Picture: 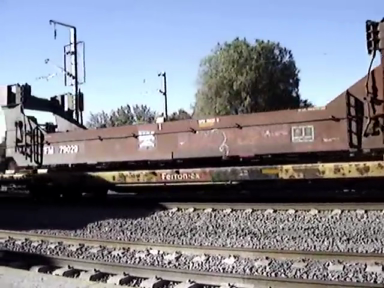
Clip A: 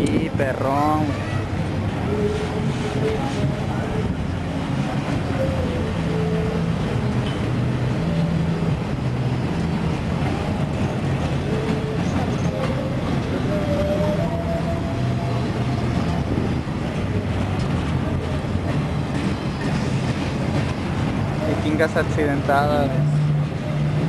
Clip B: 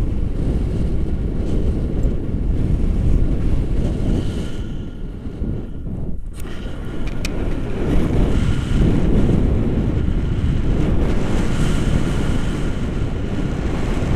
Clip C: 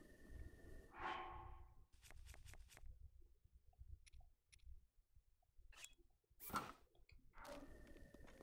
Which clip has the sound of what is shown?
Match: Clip A